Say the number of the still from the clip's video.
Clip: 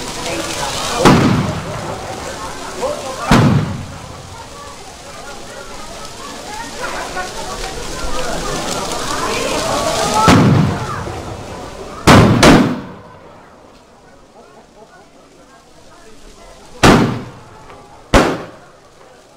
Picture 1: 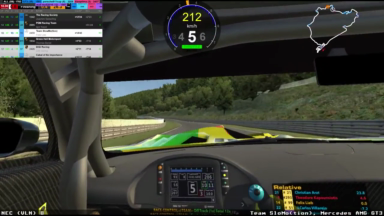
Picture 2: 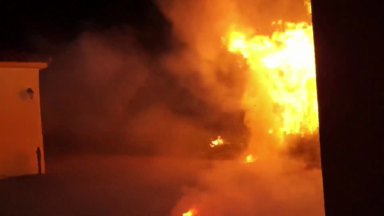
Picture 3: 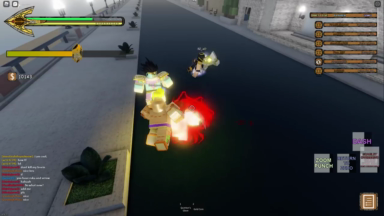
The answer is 2